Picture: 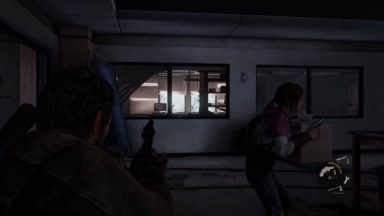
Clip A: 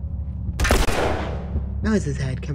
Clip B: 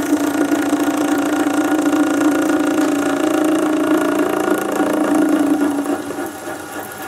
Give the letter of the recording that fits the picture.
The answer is A